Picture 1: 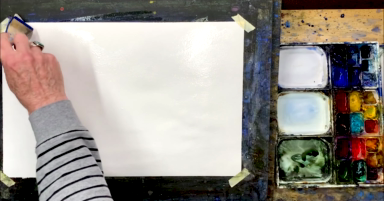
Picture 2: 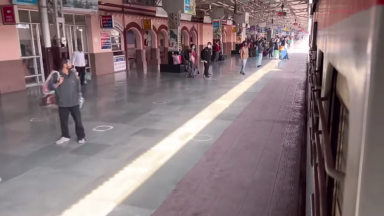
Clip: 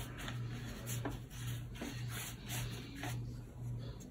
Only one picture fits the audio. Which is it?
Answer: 1